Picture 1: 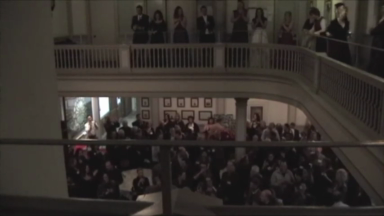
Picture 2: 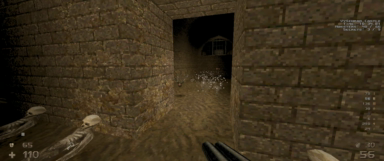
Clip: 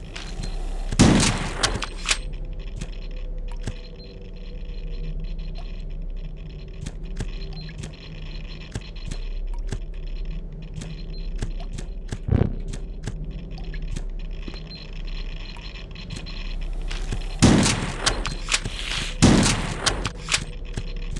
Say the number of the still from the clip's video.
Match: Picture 2